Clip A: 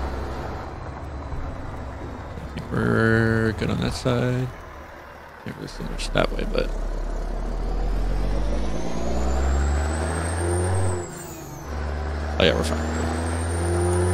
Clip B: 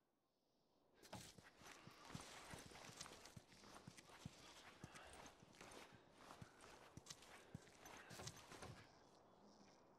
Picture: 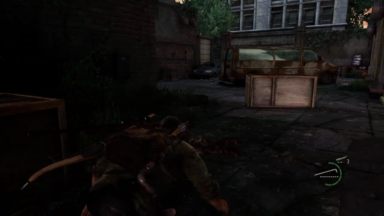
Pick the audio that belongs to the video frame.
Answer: B